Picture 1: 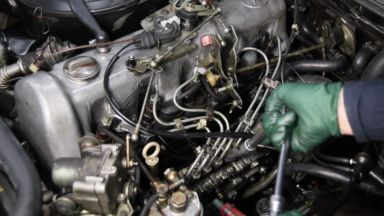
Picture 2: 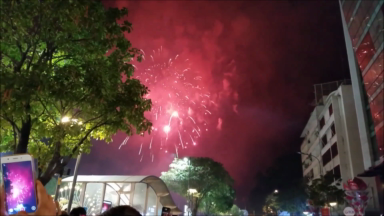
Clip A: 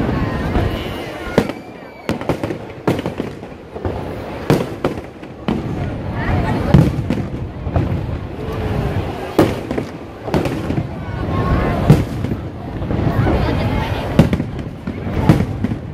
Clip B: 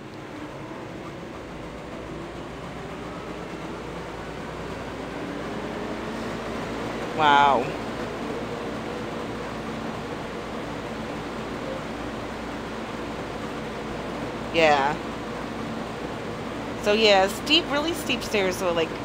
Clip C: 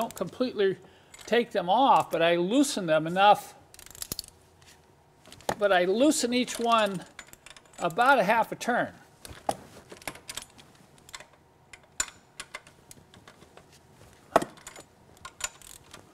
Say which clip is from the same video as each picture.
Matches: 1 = C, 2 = A